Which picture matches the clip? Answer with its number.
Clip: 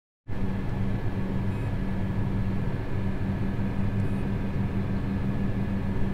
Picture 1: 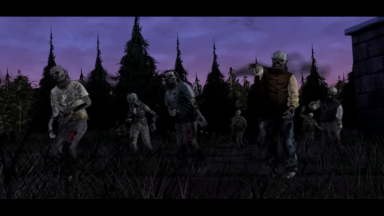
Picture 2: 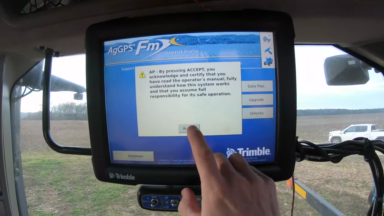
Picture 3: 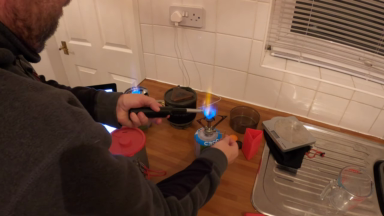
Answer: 2